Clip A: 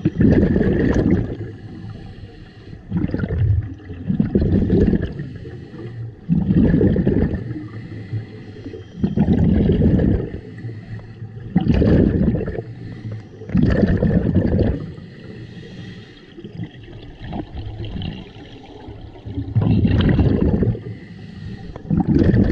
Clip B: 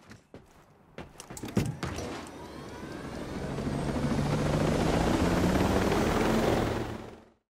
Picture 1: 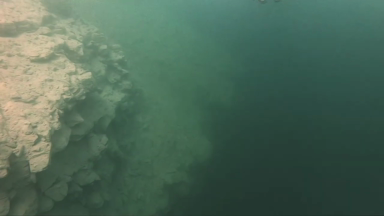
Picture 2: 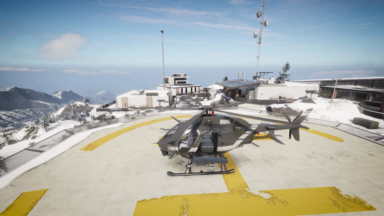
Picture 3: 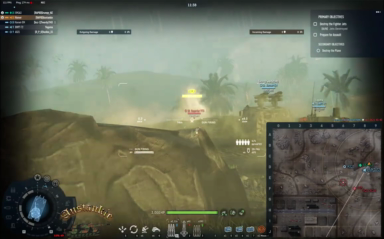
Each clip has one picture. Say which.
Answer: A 1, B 2